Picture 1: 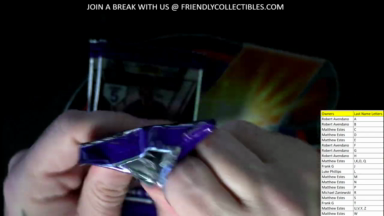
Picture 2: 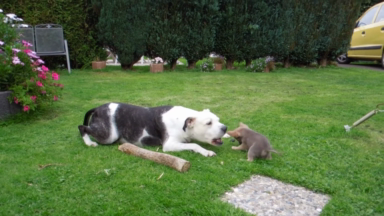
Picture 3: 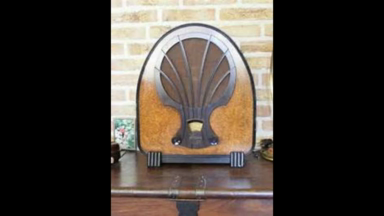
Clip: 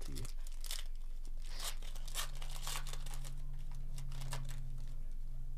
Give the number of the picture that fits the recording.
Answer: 1